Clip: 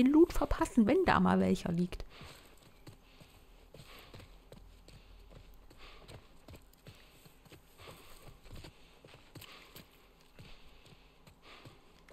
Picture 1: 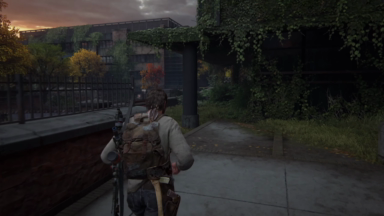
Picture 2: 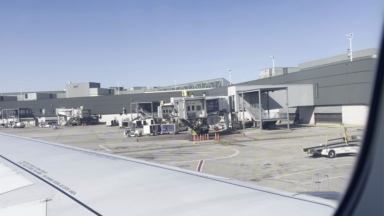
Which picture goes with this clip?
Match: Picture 1